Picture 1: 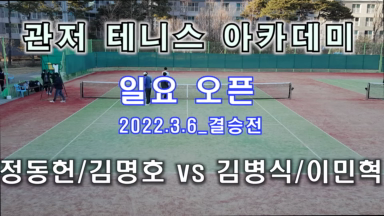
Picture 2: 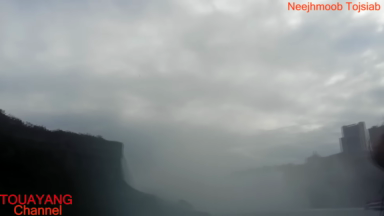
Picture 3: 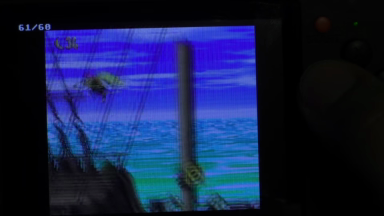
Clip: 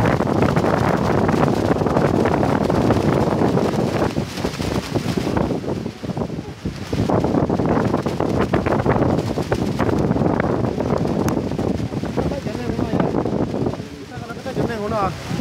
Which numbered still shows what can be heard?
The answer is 2